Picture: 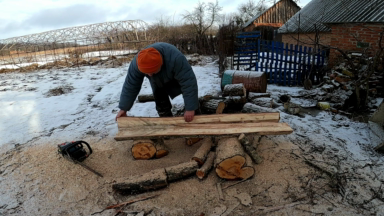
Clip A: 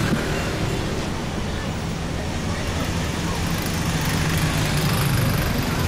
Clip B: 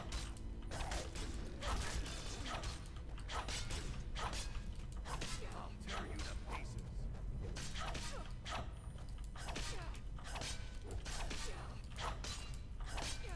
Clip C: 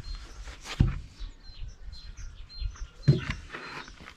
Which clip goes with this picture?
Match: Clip C